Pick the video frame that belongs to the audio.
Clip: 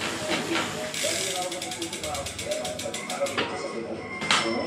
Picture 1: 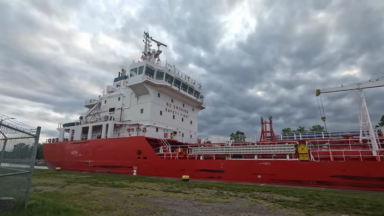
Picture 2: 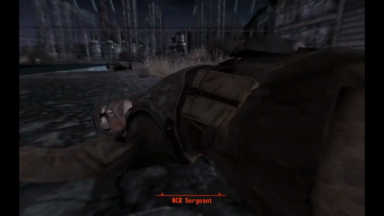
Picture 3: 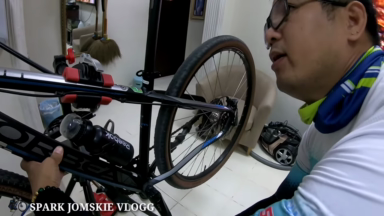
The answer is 3